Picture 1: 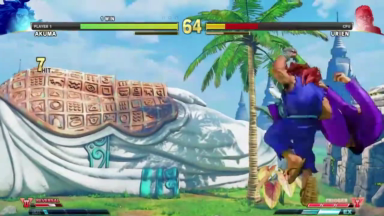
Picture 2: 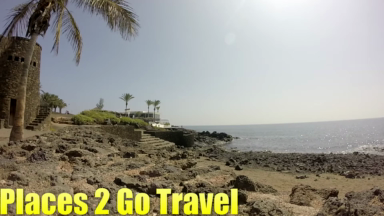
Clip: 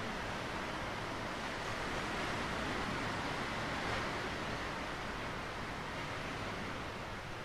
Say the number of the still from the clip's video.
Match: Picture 2